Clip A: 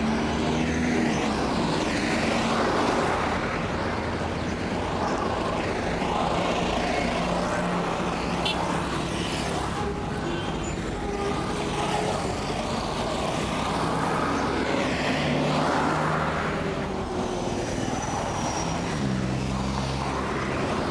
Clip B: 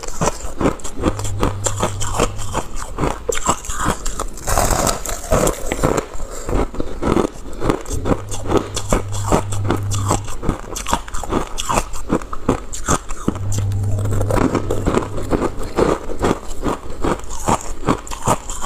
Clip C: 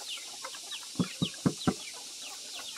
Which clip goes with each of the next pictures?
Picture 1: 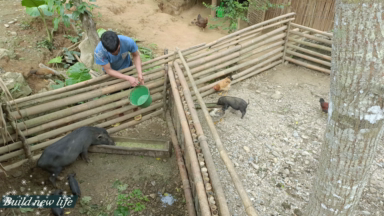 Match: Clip C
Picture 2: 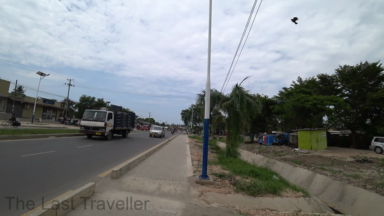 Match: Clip A